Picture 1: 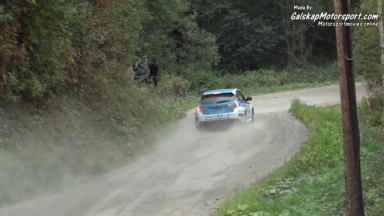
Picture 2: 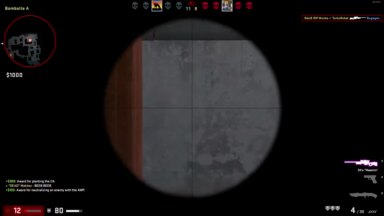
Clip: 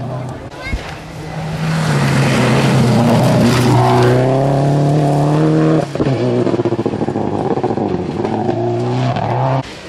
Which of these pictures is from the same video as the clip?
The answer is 1